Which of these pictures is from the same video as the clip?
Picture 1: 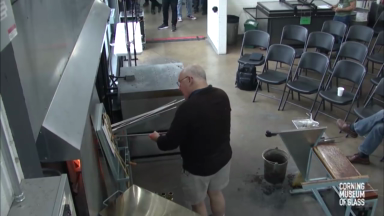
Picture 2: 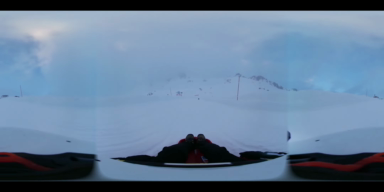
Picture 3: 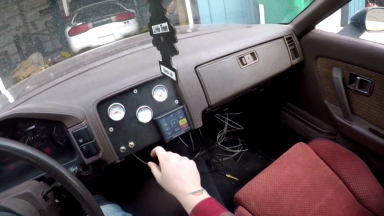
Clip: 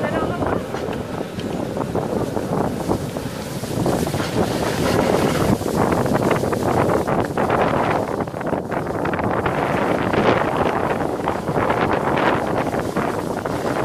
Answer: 2